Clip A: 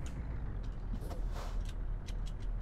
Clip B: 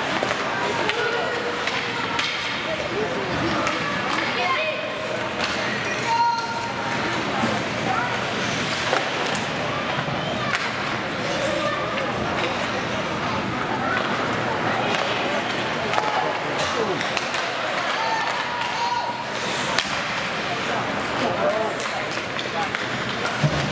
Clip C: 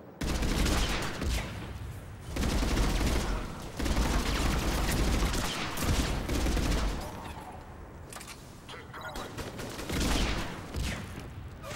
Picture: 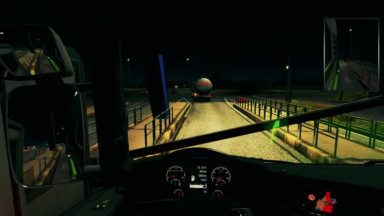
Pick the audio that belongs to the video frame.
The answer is A